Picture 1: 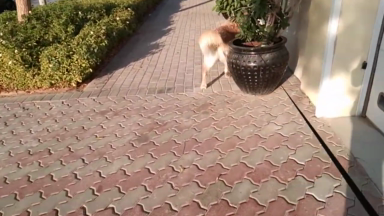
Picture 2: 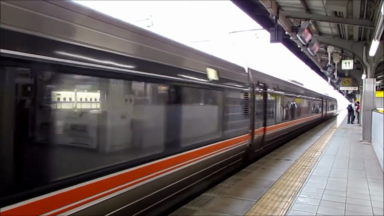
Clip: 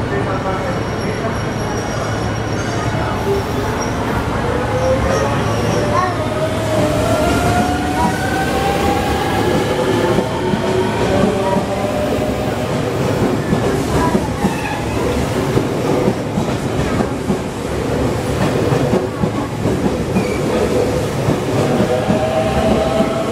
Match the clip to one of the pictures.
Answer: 2